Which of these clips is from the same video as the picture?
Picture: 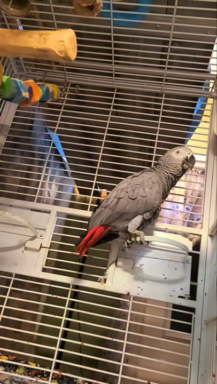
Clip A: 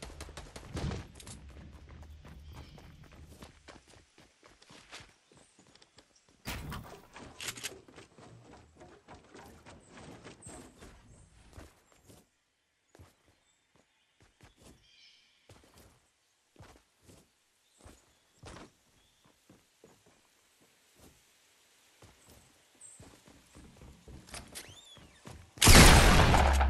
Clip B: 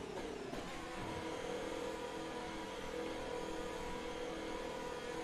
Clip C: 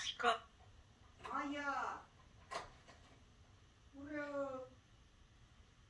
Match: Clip C